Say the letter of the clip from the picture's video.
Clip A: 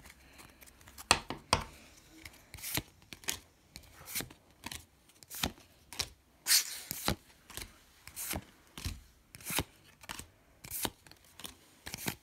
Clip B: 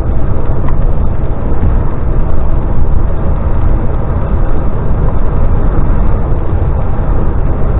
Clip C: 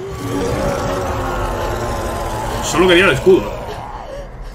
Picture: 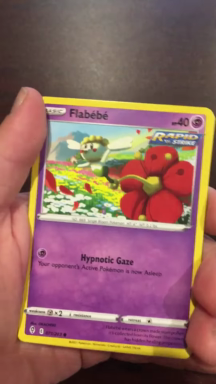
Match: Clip A